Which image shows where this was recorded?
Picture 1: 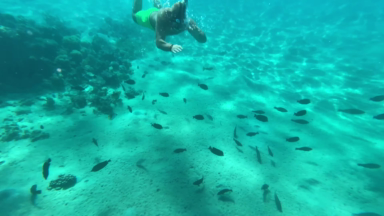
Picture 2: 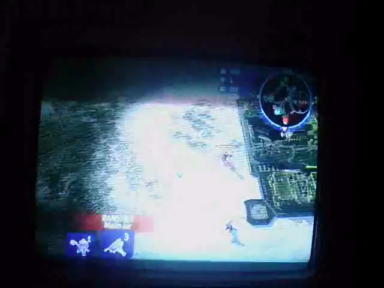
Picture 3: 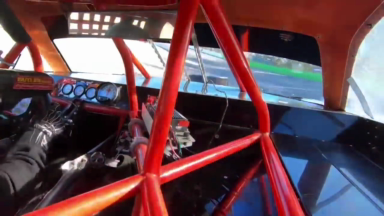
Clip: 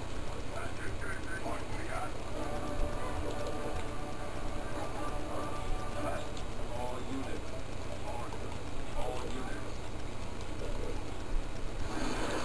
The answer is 2